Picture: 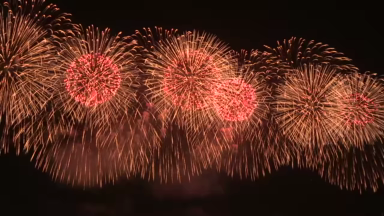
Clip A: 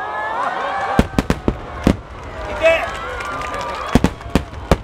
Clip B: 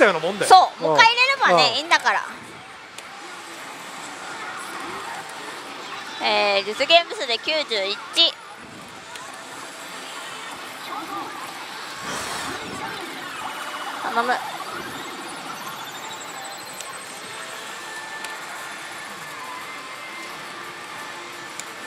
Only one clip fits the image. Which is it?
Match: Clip A